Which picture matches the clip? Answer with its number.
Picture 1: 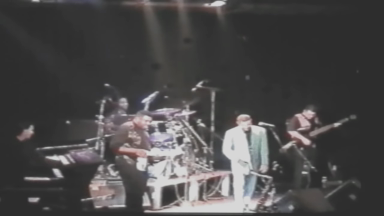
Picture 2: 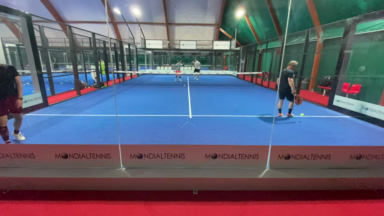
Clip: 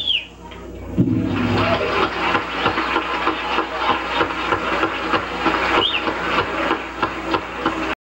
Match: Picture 1